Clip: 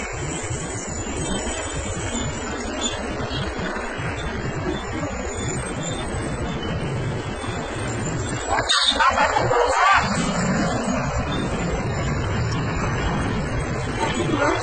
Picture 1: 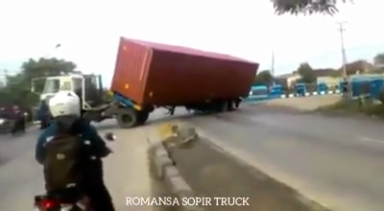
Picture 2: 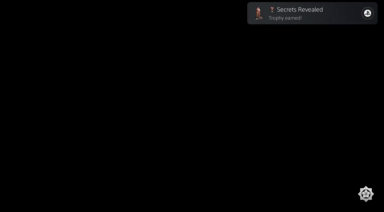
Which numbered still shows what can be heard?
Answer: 1